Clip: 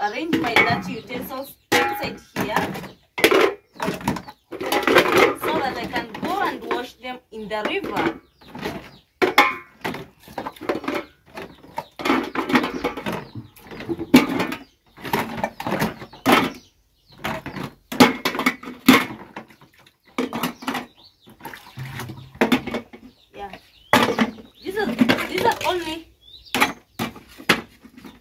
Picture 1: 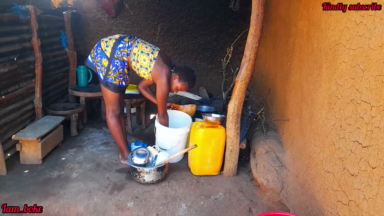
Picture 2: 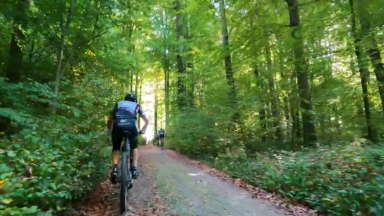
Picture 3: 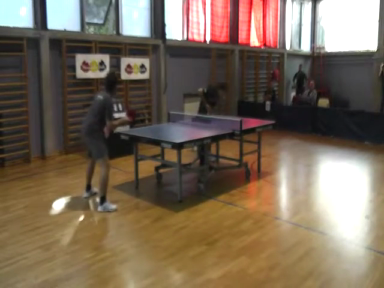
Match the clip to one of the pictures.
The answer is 1